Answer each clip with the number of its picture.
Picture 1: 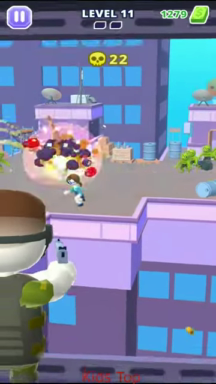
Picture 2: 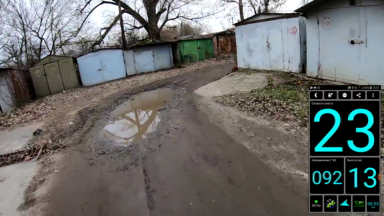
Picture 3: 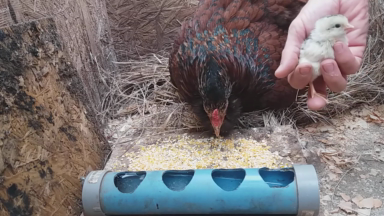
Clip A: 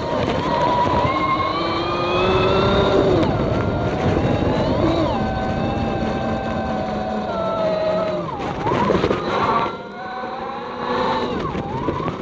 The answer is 2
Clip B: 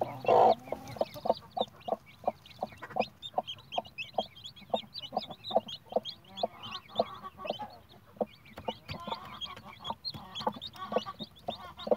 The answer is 3